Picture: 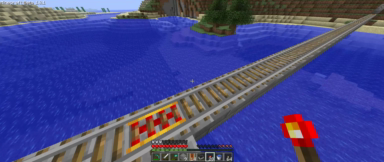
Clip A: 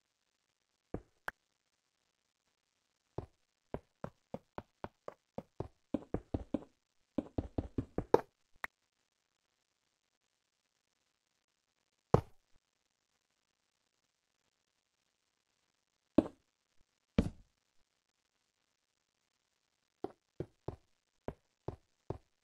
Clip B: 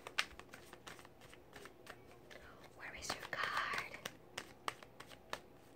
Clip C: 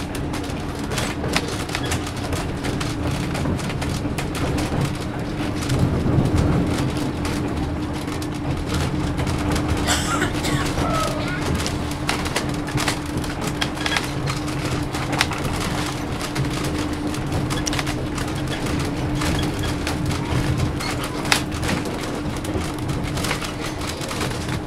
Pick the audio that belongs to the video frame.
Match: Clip A